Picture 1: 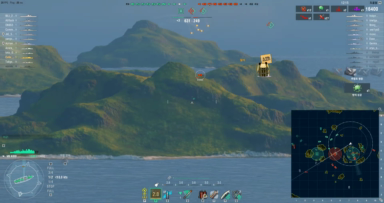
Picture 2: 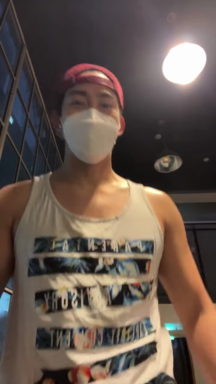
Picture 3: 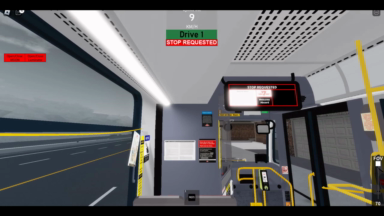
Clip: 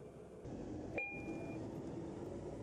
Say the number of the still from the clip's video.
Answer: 3